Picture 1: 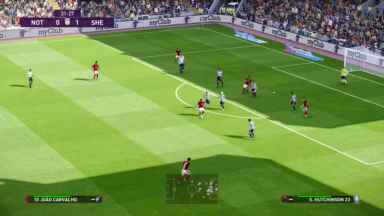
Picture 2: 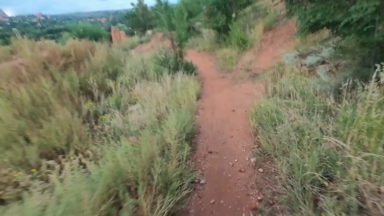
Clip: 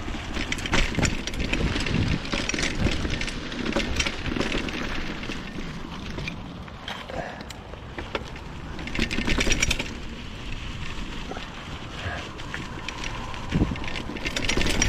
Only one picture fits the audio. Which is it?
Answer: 2